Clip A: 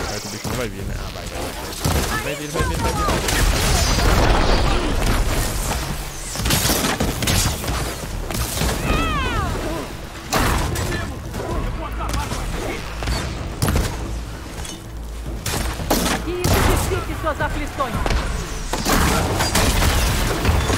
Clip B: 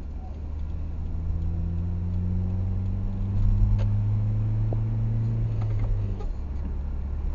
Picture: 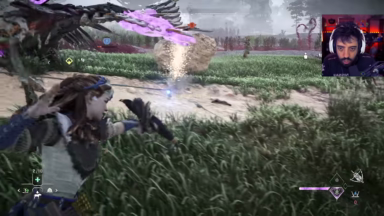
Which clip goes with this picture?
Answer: A